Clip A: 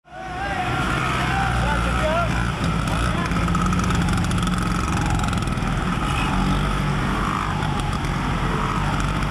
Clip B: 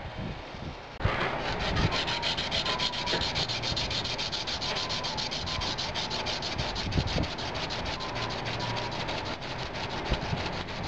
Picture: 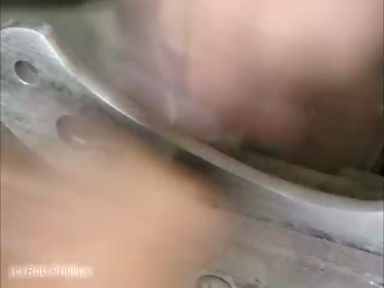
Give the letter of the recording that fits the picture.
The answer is B